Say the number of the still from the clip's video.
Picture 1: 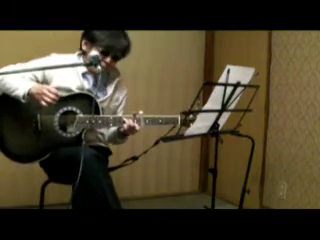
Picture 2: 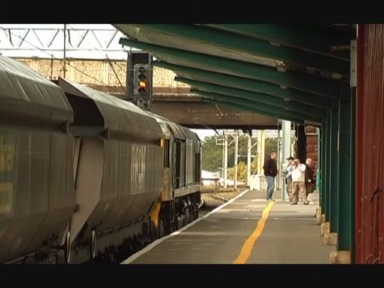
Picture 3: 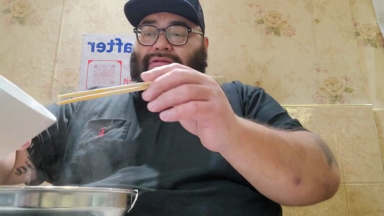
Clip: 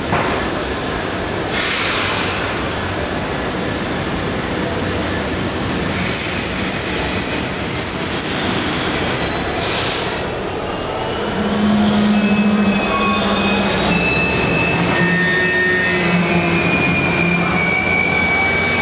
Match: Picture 2